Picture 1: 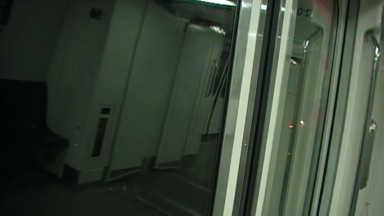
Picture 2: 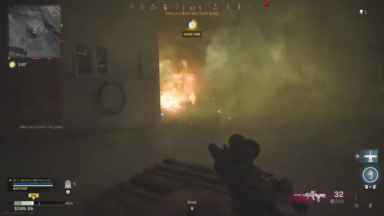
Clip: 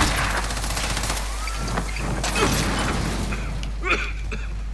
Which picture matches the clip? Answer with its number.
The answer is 2